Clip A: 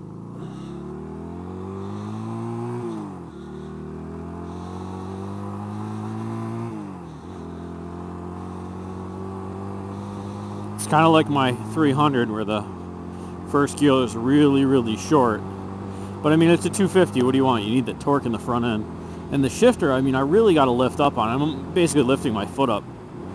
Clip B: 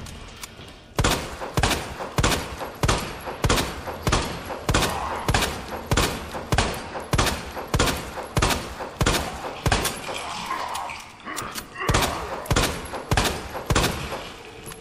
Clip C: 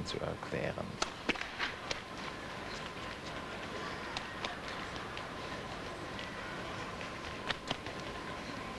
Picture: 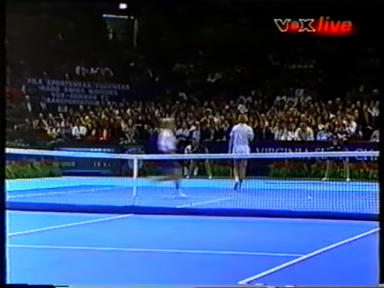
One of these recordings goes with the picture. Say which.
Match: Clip C